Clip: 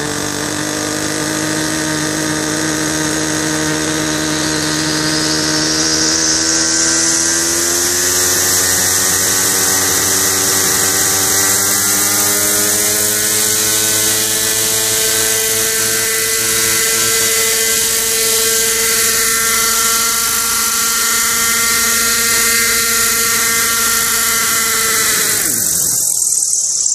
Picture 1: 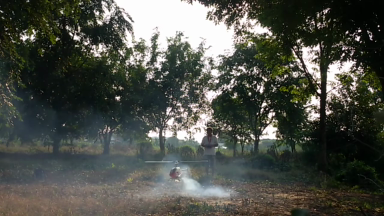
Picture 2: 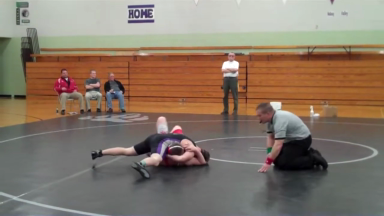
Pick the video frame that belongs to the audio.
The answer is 1